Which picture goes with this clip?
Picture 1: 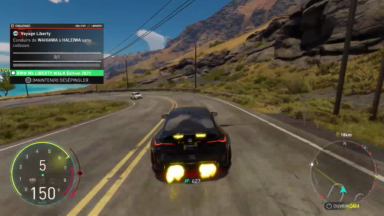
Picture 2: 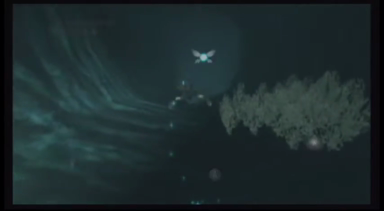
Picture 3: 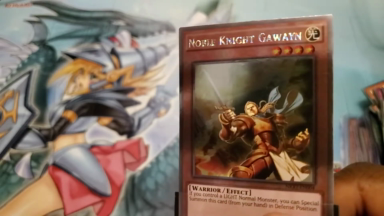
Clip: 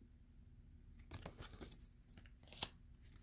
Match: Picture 3